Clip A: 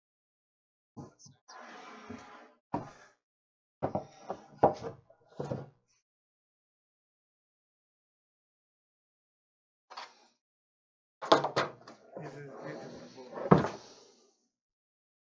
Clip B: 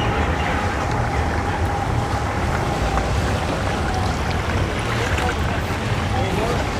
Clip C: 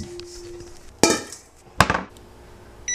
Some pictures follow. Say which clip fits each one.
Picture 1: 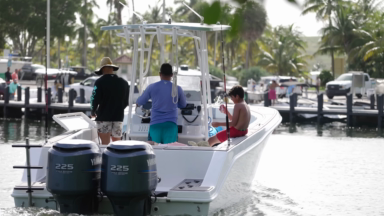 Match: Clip B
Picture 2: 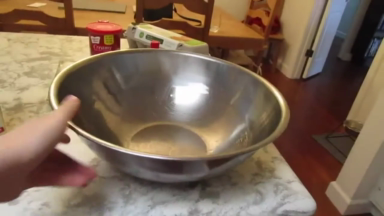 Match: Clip C